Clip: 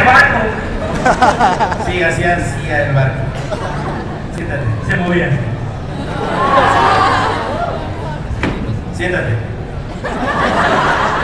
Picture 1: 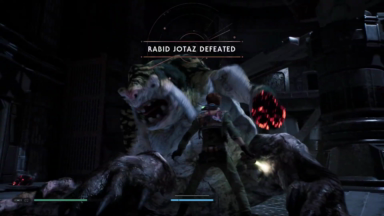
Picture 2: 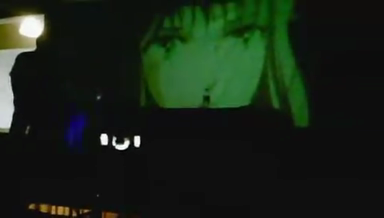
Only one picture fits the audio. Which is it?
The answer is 2